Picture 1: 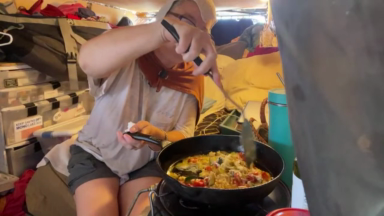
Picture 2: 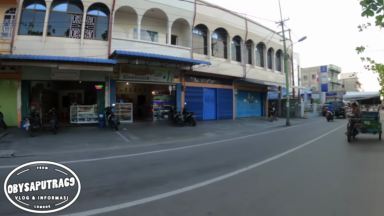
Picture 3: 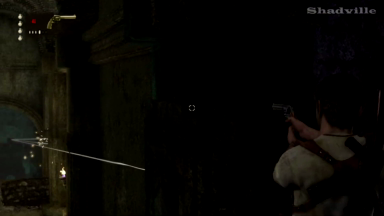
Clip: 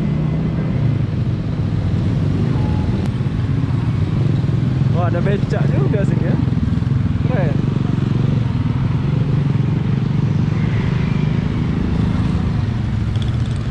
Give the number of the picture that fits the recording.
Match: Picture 2